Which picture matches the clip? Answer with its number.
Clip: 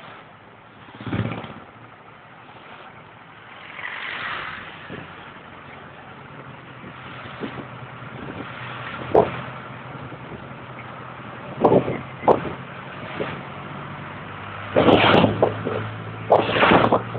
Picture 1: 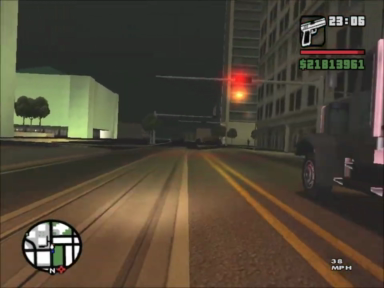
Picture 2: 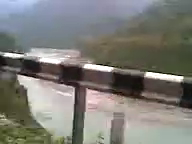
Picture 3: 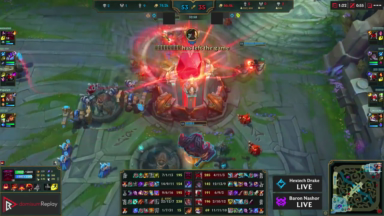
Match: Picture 2